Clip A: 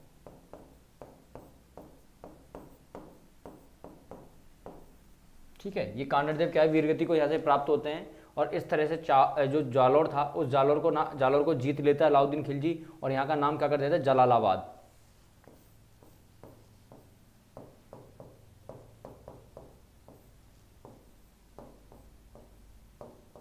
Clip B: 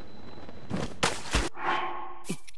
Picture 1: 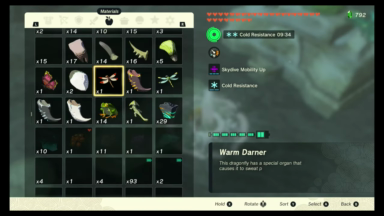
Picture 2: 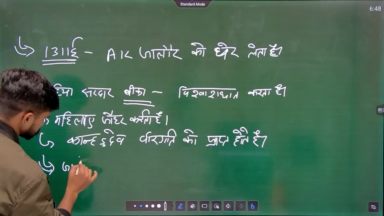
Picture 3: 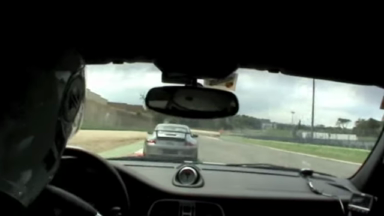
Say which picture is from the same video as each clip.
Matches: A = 2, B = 1